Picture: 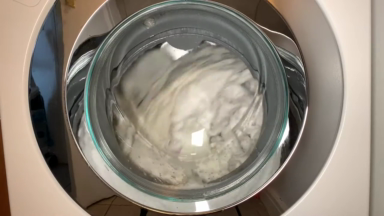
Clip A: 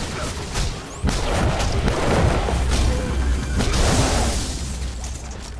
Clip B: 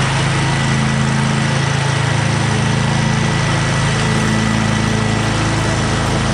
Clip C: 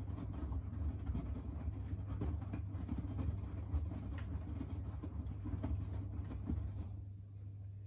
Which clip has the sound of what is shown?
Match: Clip C